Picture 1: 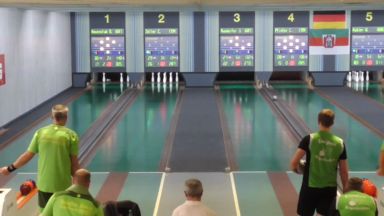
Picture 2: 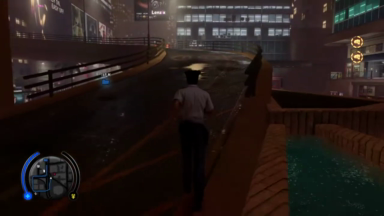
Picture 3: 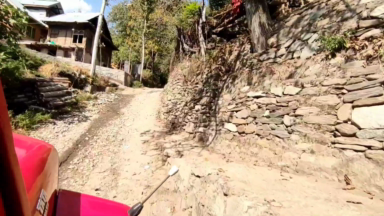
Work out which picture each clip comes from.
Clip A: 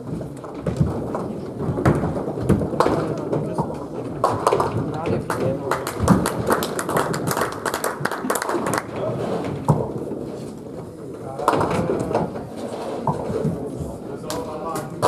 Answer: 1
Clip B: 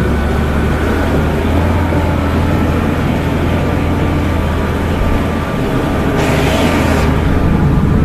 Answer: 3